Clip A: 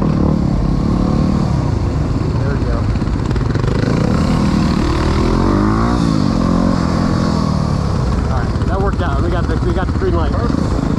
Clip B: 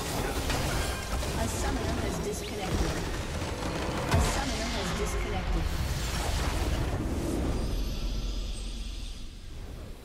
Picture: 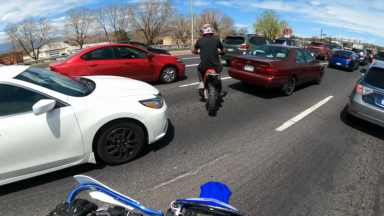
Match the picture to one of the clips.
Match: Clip A